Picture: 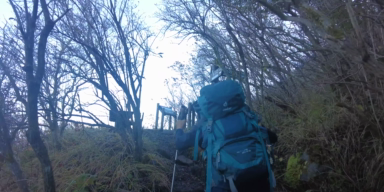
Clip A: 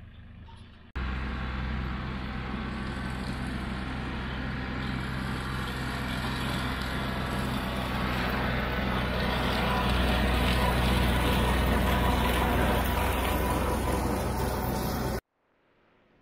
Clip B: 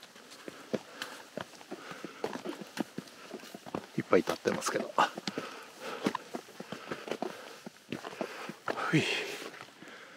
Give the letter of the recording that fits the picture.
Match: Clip B